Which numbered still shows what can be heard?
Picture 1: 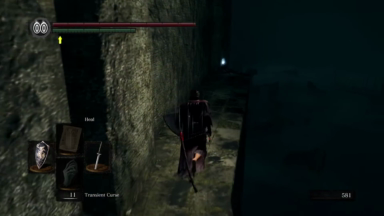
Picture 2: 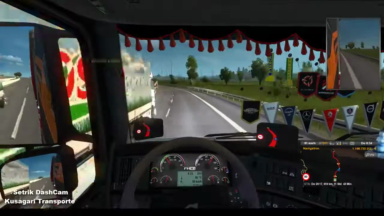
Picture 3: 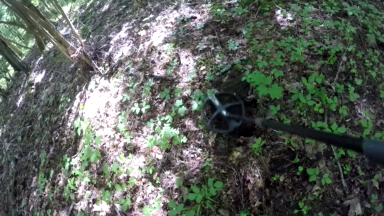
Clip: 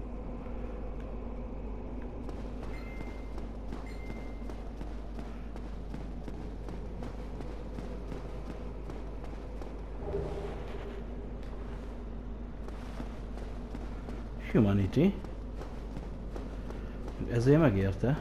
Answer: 1